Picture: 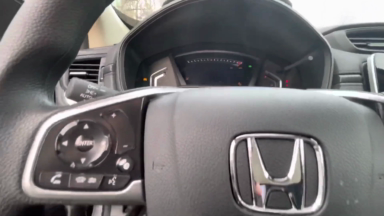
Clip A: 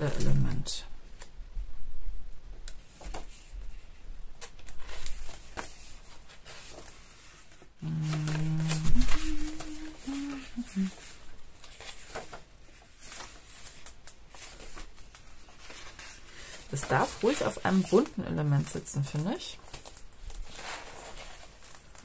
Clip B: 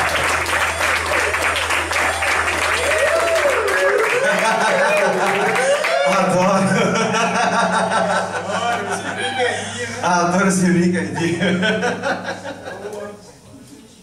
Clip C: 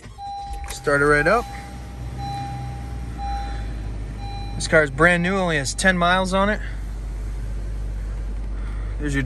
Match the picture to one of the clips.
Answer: C